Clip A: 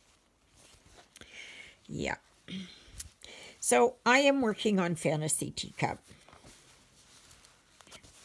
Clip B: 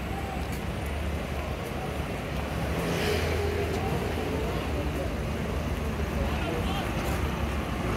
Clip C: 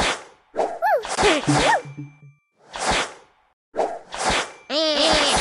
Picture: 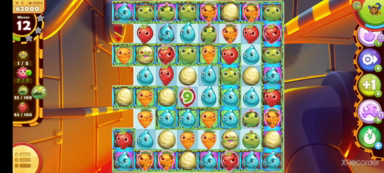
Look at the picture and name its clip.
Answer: C